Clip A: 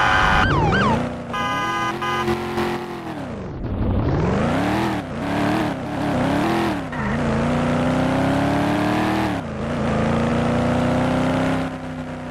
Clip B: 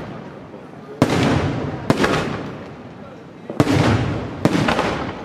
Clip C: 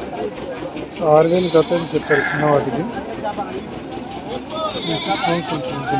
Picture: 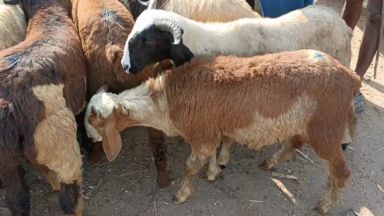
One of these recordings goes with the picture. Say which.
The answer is C